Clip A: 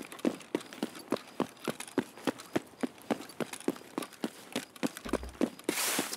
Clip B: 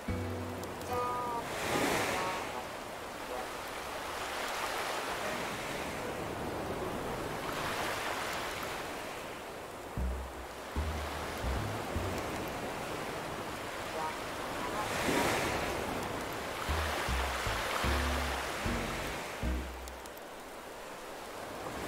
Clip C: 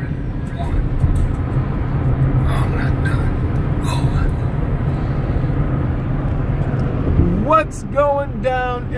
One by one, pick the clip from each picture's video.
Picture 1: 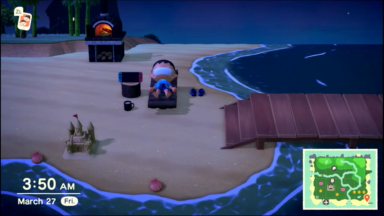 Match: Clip B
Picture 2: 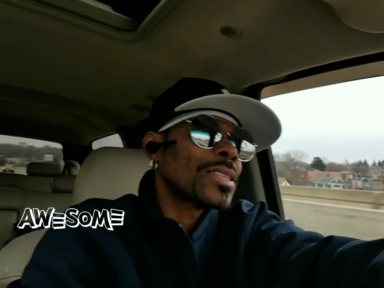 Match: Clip C